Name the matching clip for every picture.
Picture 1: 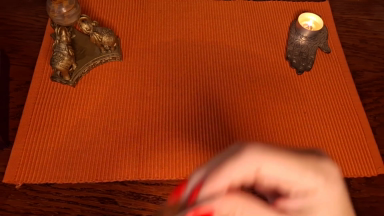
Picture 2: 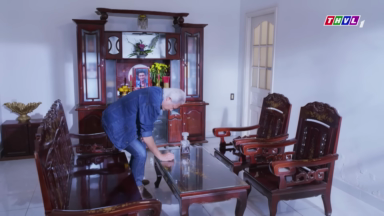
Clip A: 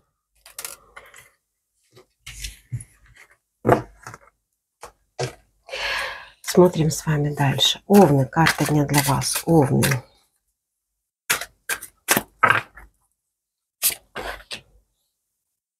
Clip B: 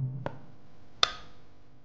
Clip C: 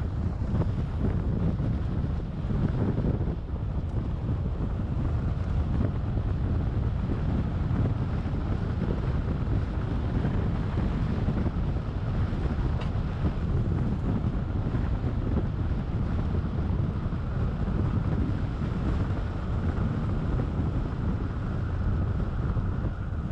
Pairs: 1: A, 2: B